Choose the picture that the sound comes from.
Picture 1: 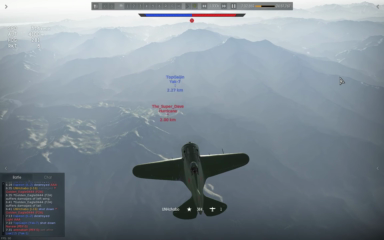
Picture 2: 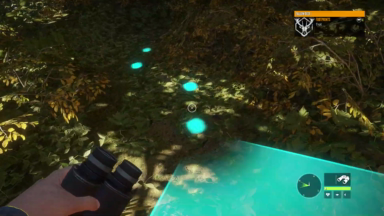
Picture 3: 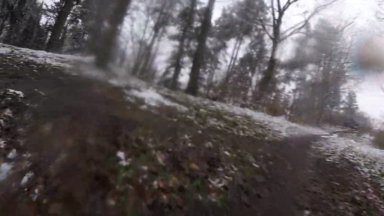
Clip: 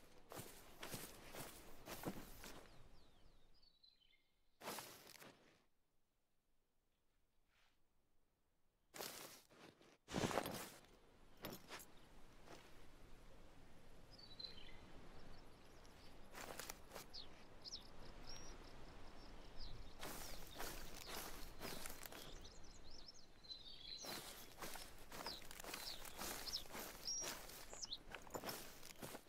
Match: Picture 2